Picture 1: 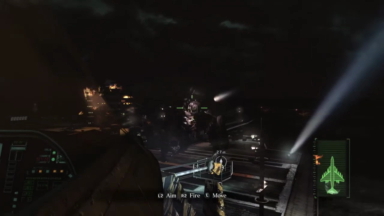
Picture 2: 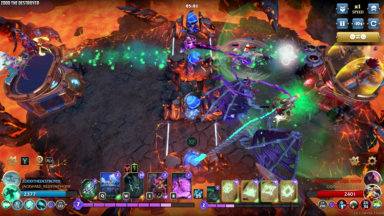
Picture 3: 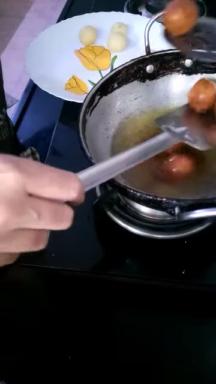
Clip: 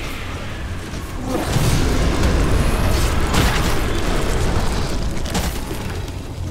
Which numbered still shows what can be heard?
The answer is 2